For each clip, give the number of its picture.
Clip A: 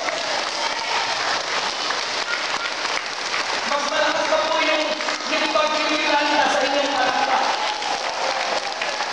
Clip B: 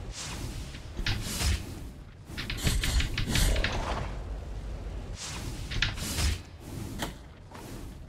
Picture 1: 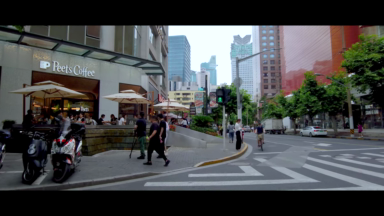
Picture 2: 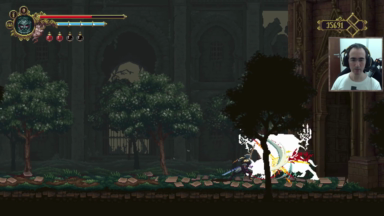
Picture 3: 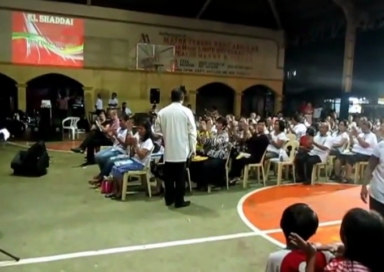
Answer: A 3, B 2